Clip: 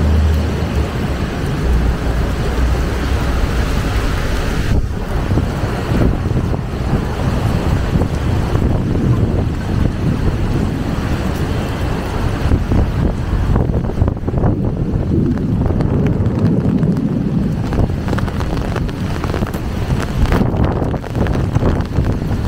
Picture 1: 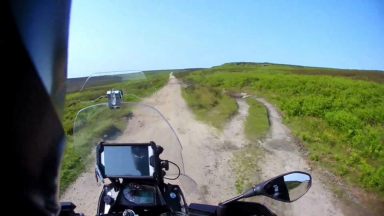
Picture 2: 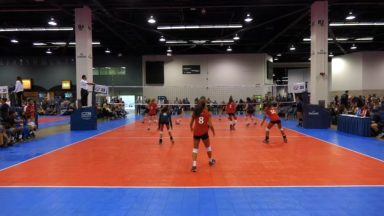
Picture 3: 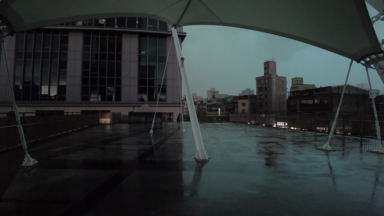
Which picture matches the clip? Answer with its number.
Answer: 3